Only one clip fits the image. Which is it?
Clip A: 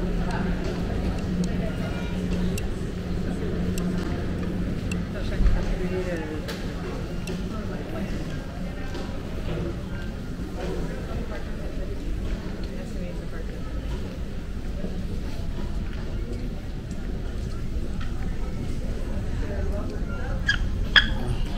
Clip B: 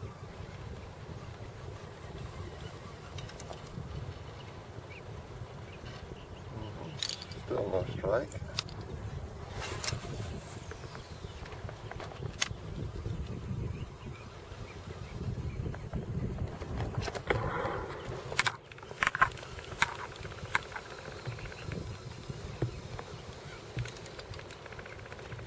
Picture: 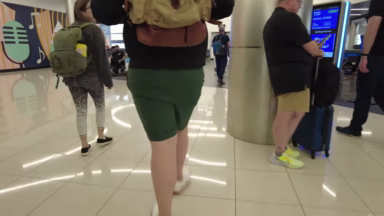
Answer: A